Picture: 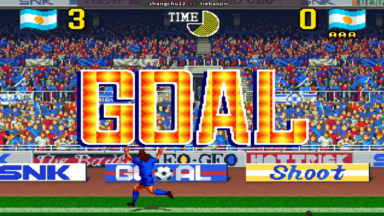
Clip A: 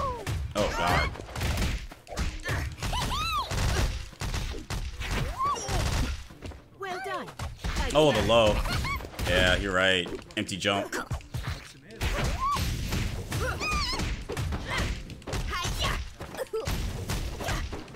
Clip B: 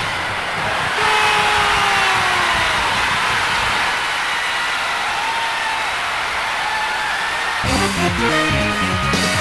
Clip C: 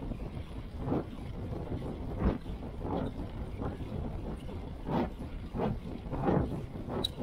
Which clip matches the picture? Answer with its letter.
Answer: B